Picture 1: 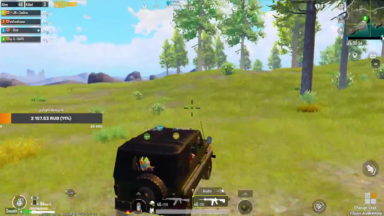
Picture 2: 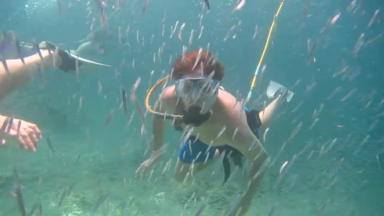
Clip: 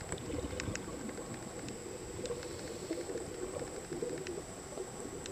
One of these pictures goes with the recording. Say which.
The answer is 2